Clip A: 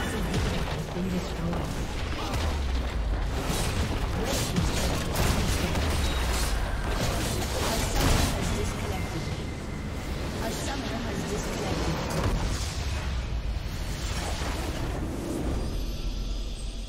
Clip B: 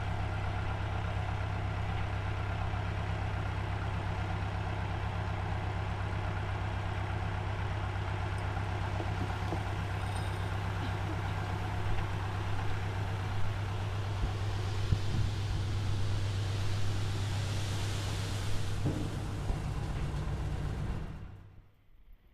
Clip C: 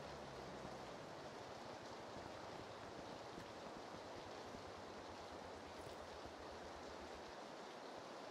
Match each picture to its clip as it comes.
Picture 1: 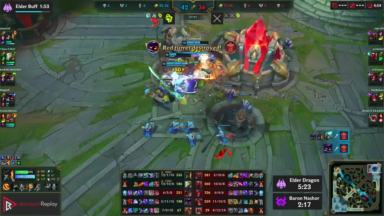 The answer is A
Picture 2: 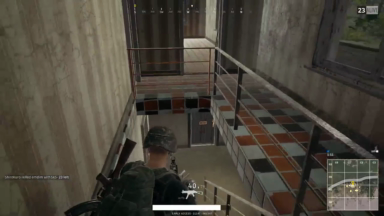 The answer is C